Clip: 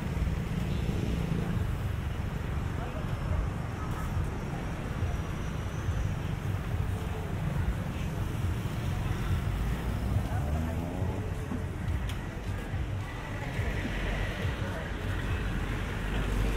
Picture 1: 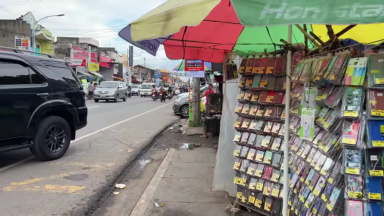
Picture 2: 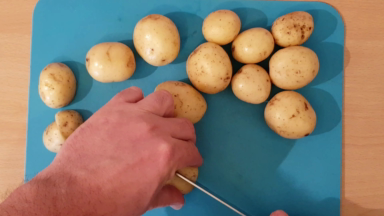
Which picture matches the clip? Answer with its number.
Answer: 1